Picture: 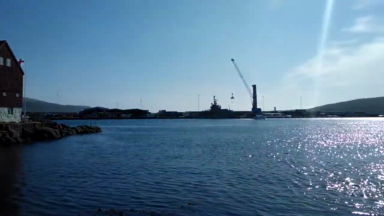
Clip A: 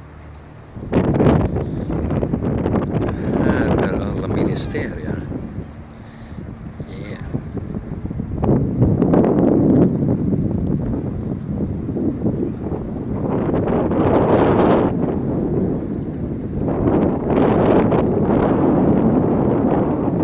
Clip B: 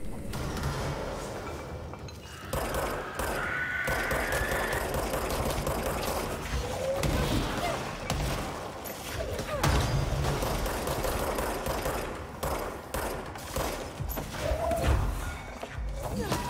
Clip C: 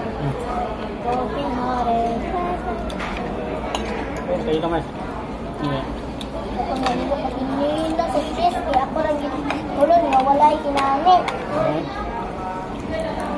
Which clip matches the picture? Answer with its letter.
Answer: A